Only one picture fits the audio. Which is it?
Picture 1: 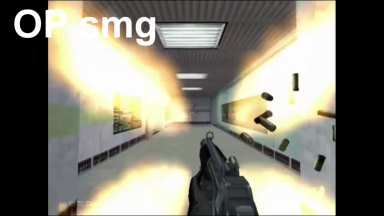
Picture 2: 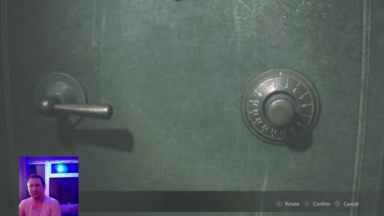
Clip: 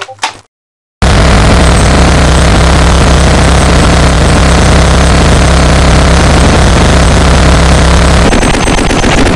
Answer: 1